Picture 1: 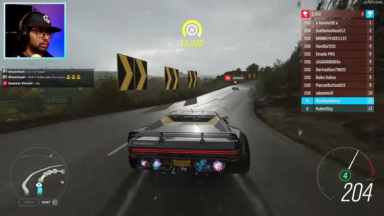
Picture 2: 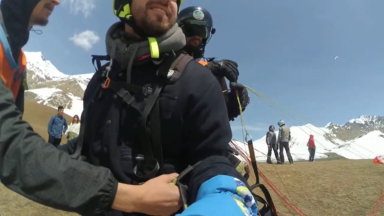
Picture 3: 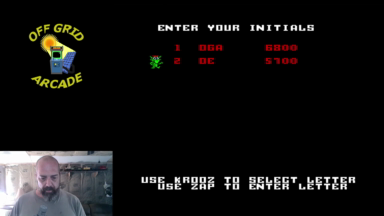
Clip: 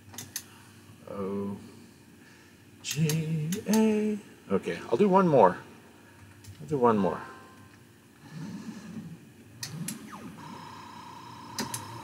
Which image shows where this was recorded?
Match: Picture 3